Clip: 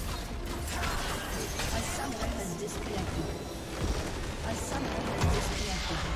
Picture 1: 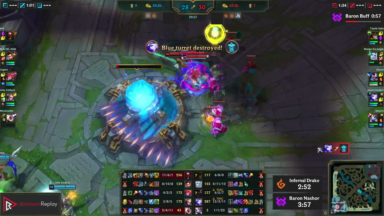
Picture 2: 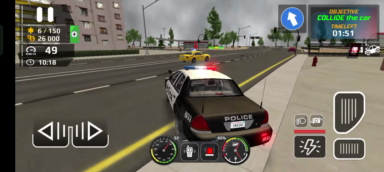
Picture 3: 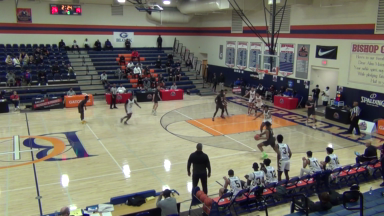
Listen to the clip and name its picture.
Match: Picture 1